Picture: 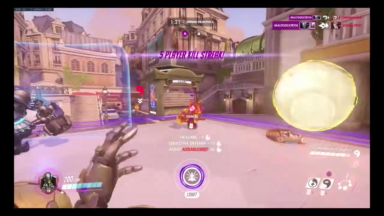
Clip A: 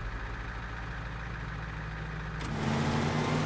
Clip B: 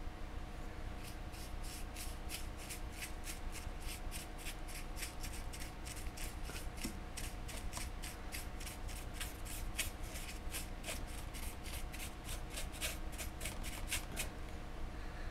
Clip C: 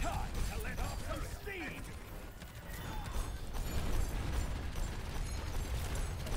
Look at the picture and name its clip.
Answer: C